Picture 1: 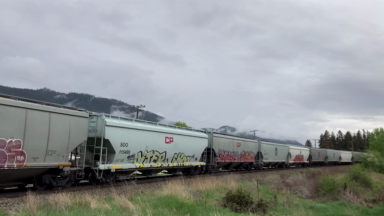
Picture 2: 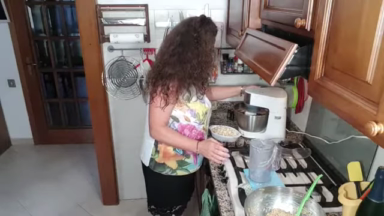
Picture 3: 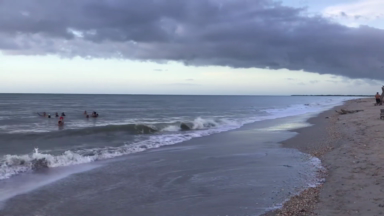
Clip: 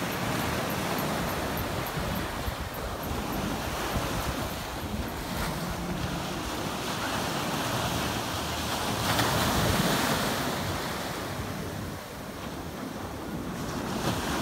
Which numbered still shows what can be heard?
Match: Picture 3